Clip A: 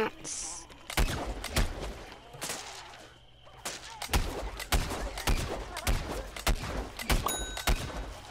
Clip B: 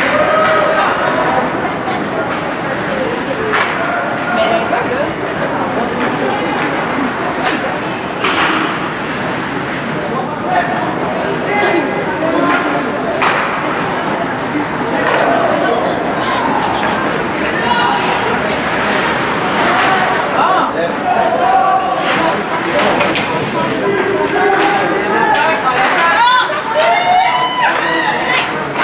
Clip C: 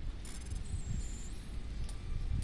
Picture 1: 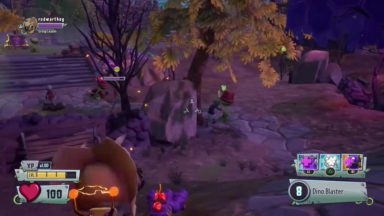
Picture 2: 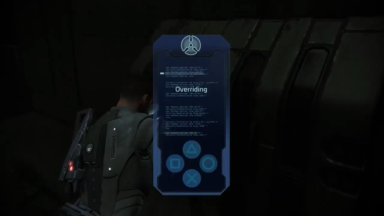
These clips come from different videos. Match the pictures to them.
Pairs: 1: A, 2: C